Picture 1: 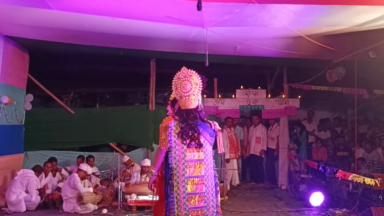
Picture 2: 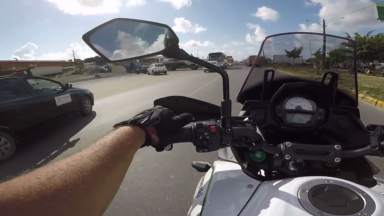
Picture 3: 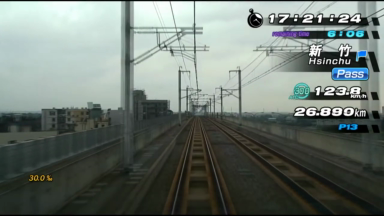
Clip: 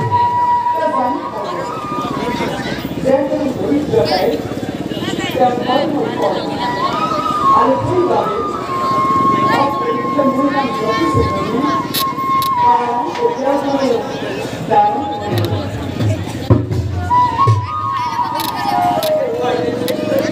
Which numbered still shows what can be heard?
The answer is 1